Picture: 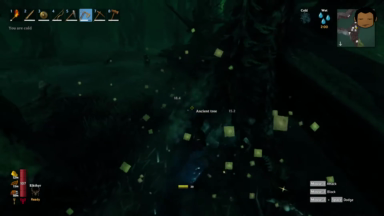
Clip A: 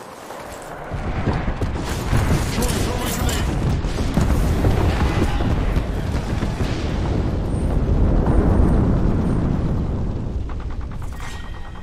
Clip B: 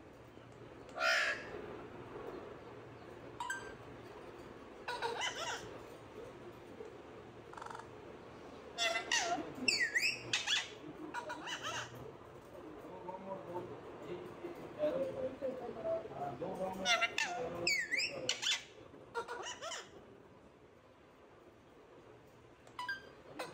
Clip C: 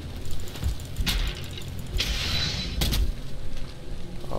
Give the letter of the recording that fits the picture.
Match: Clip C